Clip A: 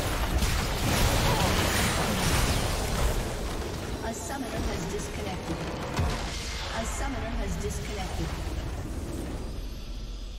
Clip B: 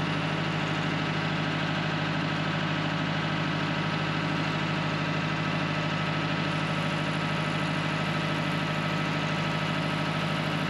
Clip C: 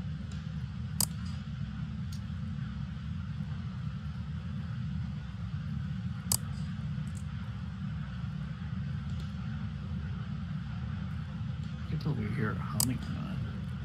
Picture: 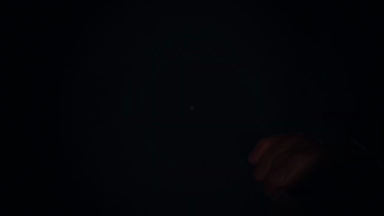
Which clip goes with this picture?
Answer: C